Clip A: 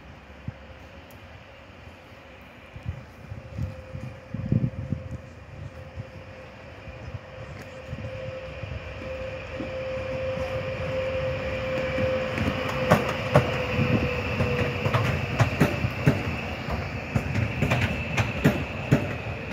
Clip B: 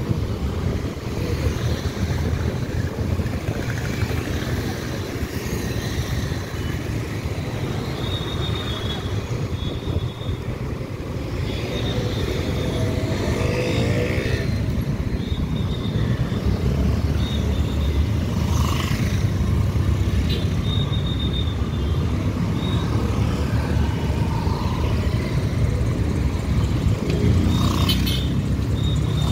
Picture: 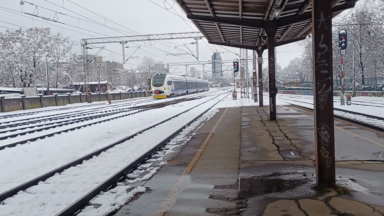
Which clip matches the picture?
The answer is A